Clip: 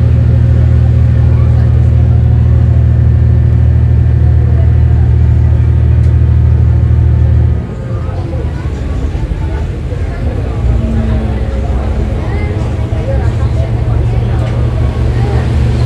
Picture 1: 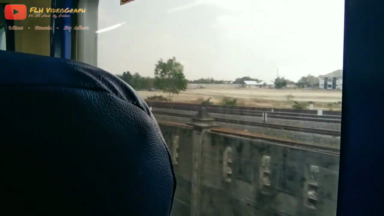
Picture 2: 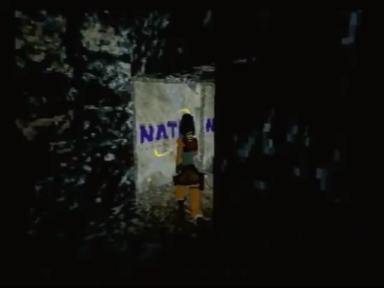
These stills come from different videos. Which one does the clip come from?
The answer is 1